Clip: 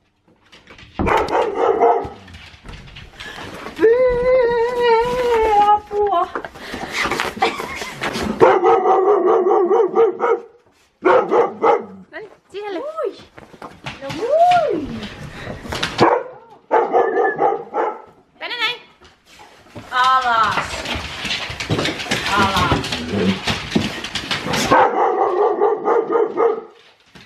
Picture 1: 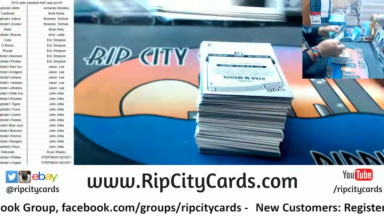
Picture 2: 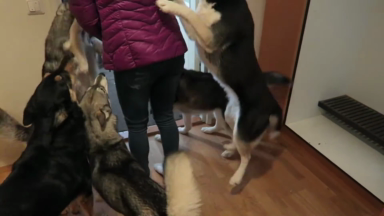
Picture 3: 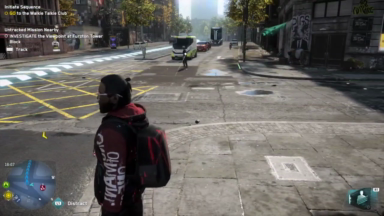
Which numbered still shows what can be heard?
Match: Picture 2